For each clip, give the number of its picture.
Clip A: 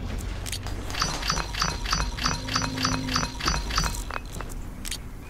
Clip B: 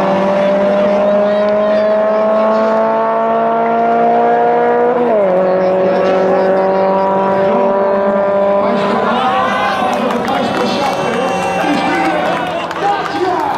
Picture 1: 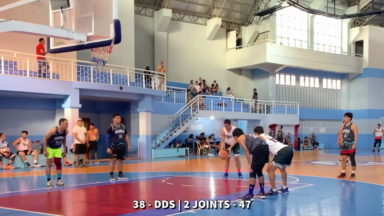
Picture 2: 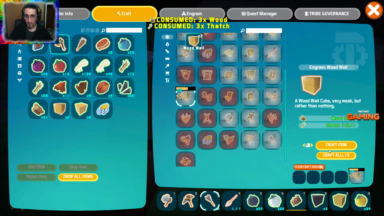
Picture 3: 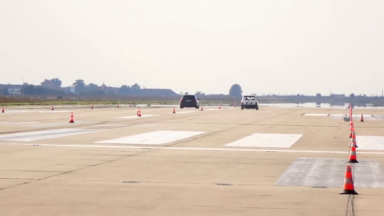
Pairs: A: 2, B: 3